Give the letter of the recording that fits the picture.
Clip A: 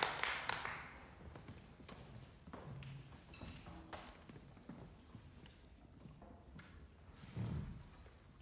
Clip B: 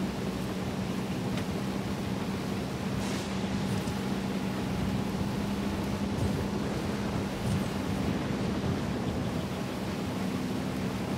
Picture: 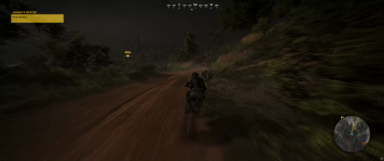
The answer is B